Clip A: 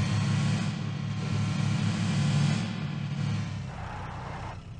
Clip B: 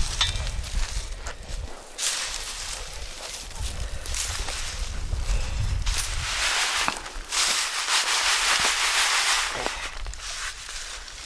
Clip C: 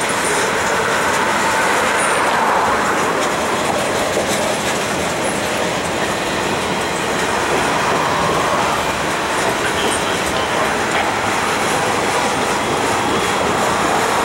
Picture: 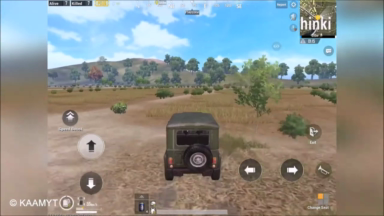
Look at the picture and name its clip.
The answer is A